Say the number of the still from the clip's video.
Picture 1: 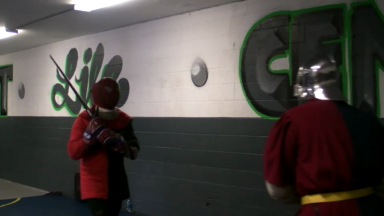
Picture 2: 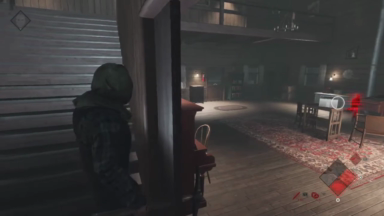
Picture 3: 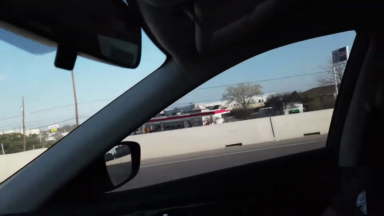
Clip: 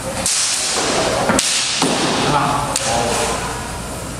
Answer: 1